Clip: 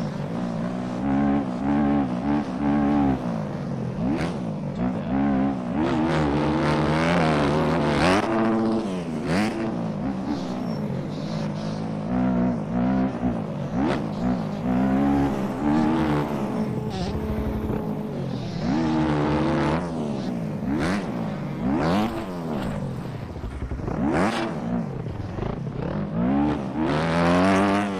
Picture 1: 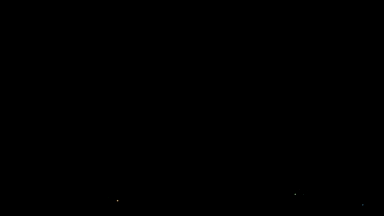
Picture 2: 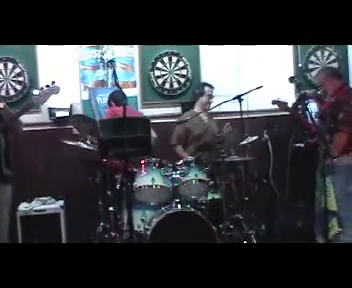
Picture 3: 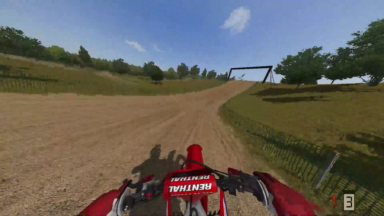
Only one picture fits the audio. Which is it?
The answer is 3